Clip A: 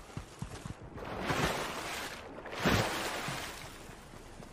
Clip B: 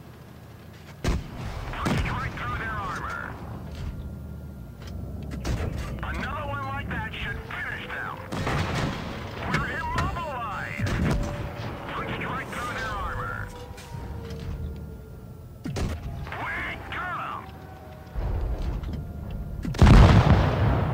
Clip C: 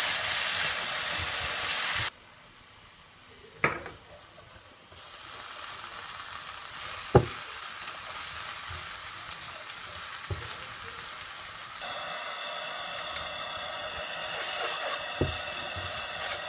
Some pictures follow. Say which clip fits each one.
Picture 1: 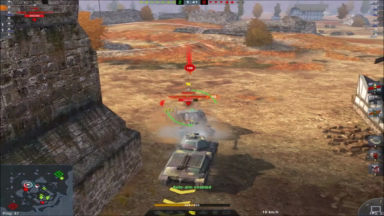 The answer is B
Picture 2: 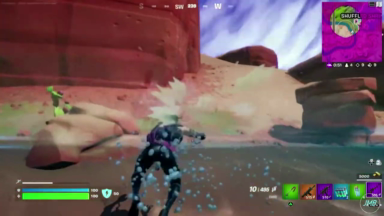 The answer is A